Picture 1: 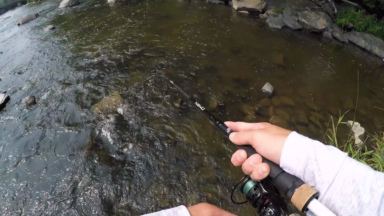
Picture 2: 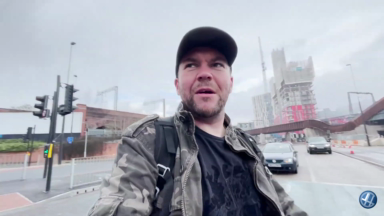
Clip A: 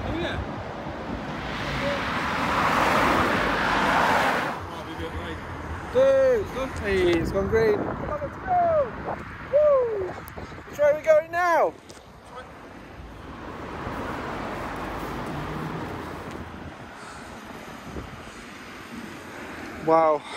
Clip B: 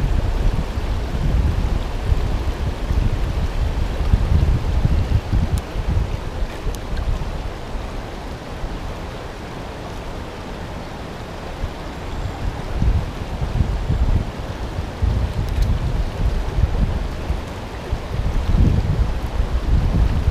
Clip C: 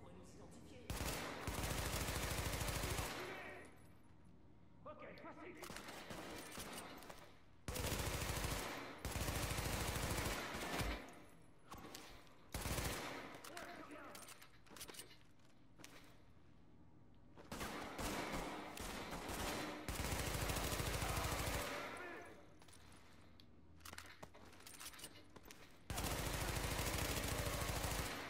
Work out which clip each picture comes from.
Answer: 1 B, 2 A